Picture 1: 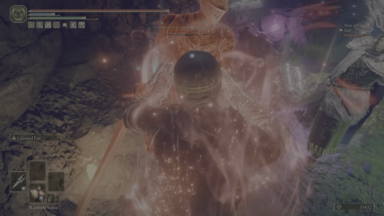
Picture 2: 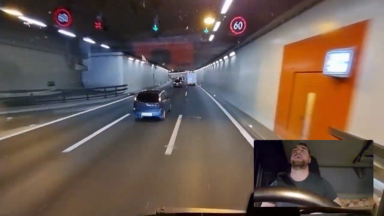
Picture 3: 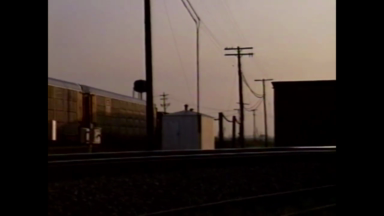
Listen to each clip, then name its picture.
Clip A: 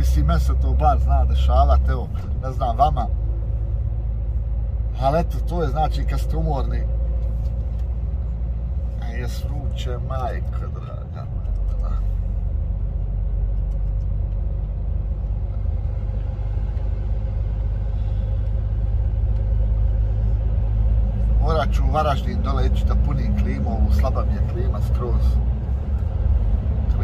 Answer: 2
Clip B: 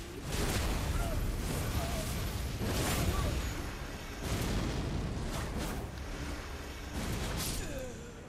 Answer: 1